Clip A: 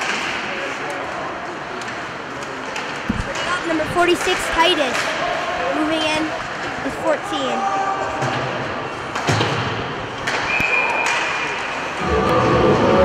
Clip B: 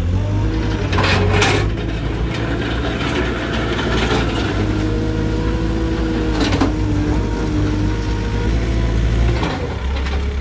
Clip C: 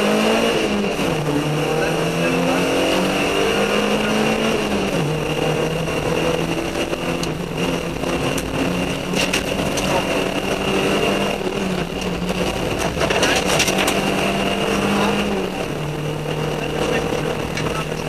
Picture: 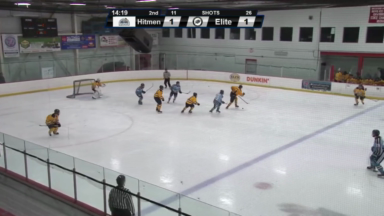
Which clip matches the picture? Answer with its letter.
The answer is A